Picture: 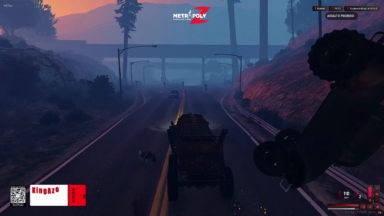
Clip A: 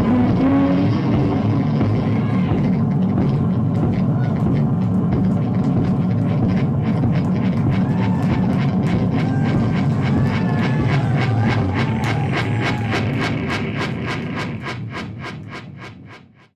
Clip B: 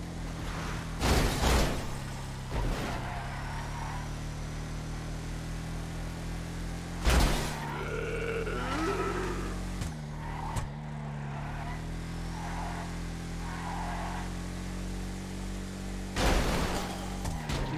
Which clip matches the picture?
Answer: B